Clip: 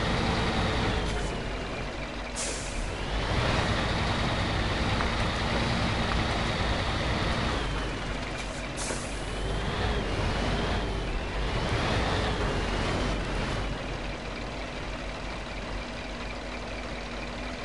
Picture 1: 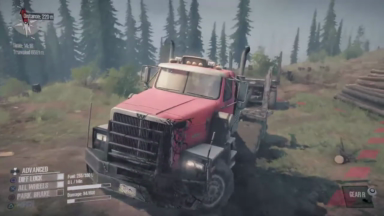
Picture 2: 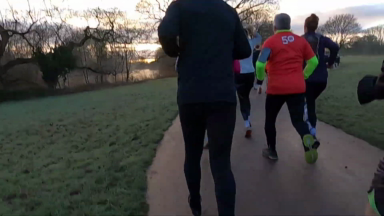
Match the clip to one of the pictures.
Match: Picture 1